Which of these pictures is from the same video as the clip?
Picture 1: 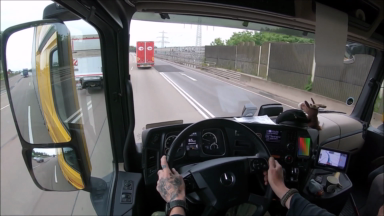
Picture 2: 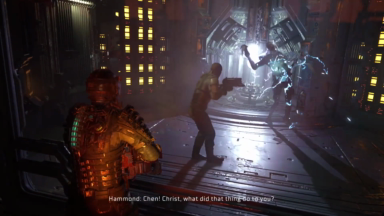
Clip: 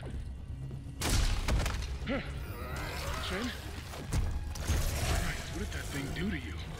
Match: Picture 2